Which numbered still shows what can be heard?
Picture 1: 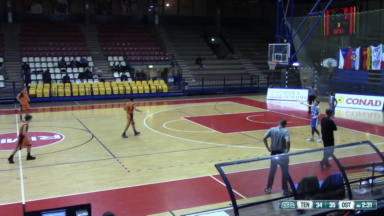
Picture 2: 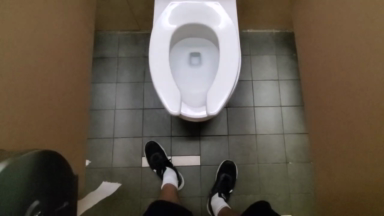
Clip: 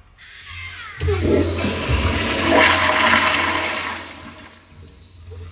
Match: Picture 2